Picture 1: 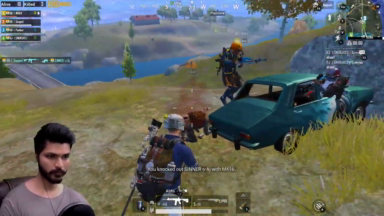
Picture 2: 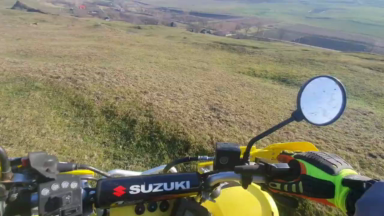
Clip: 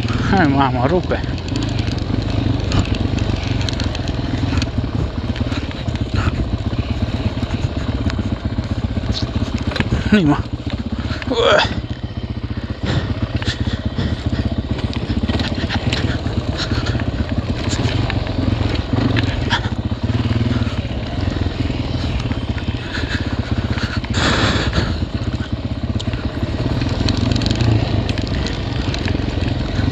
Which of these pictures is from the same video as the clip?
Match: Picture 2